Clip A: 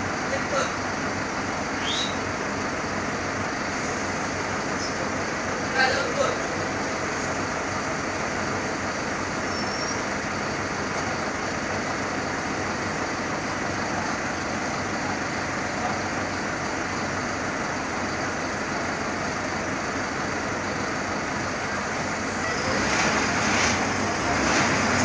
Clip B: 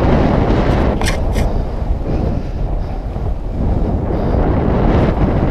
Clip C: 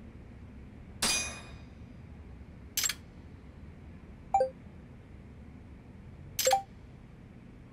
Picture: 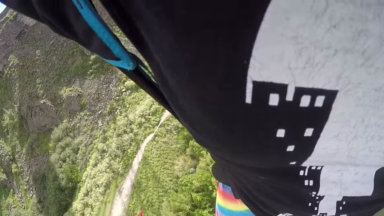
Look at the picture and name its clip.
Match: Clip B